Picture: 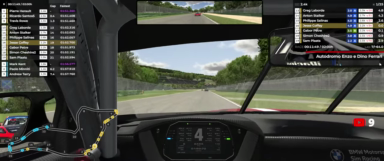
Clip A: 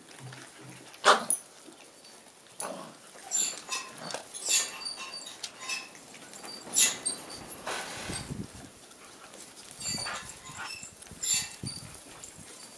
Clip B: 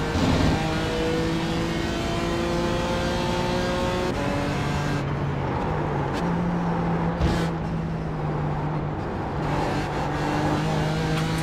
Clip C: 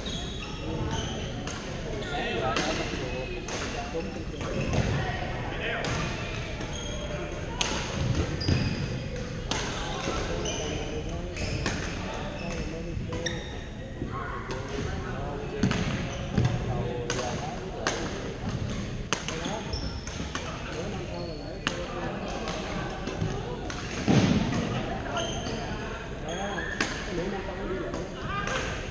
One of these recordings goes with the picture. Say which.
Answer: B